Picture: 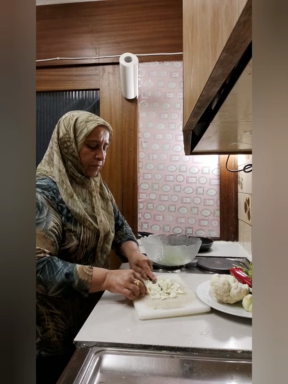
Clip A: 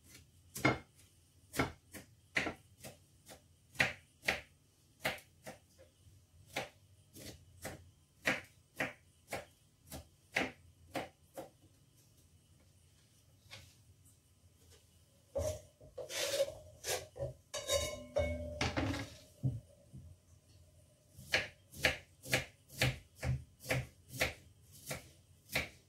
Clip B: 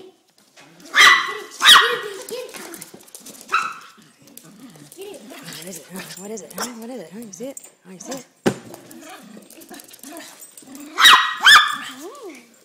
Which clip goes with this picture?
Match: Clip A